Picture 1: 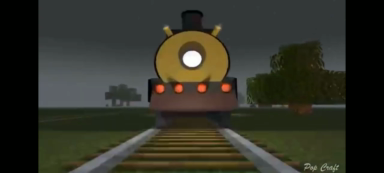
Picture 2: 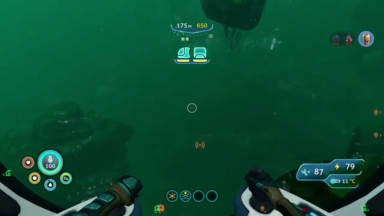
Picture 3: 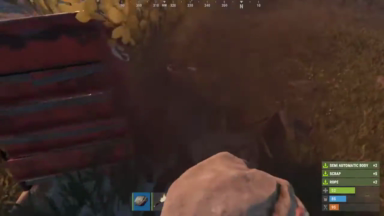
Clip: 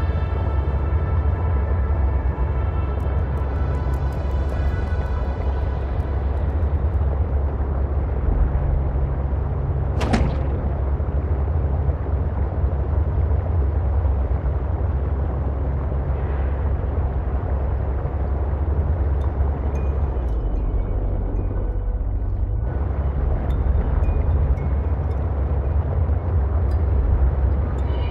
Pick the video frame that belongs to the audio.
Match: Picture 2